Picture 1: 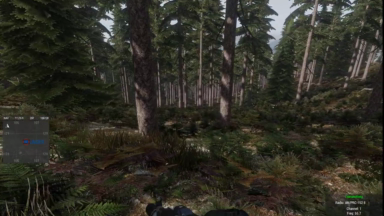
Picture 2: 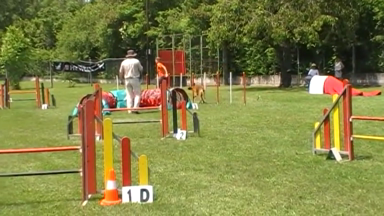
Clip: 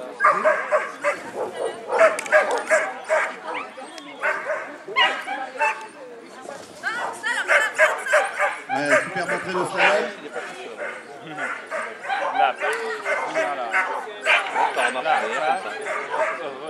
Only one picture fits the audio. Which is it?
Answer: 2